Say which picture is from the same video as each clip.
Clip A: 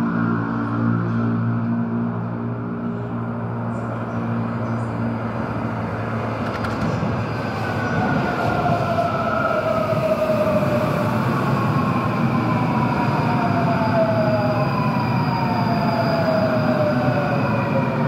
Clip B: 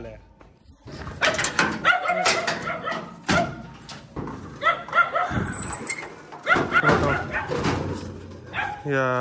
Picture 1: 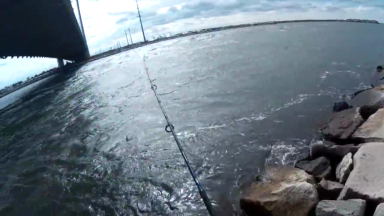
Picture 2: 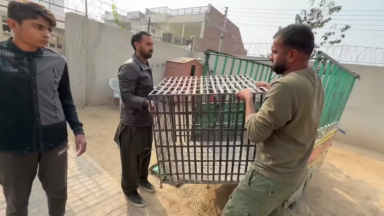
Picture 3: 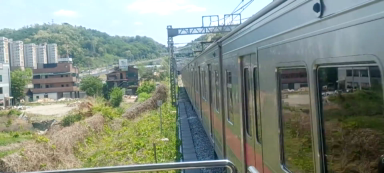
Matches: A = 3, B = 2